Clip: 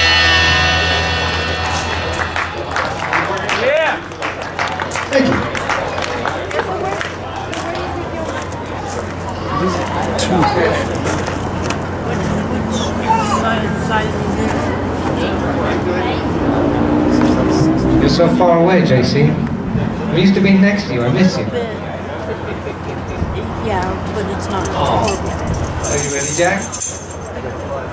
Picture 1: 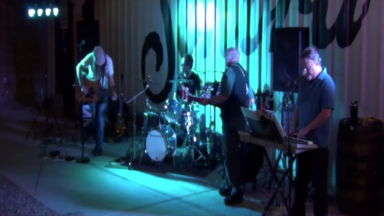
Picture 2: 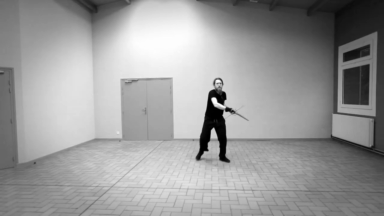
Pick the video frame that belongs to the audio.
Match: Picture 1